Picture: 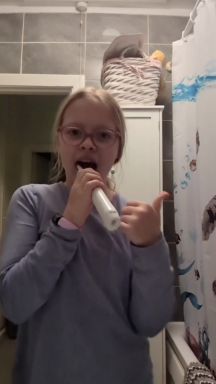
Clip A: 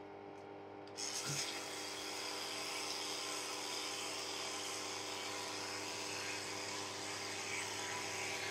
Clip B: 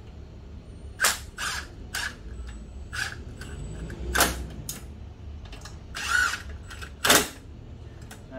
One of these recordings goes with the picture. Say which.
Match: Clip A